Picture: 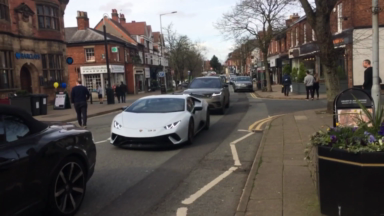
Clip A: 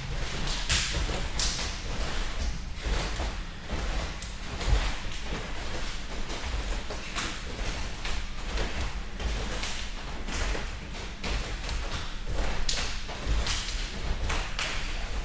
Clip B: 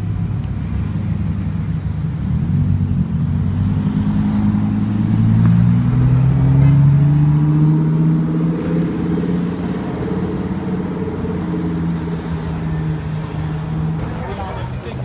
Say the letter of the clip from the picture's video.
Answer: B